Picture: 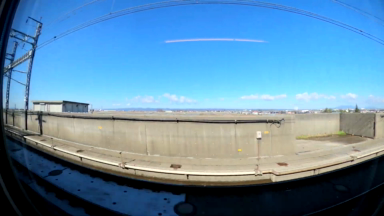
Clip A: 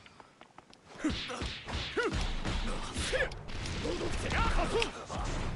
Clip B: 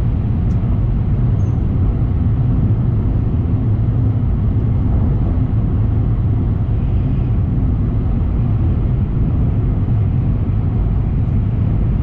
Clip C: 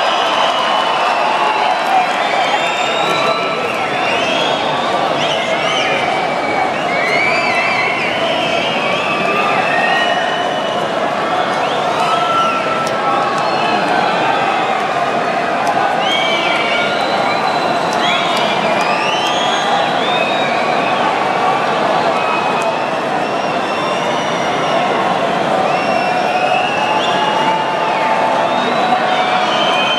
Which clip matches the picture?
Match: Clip B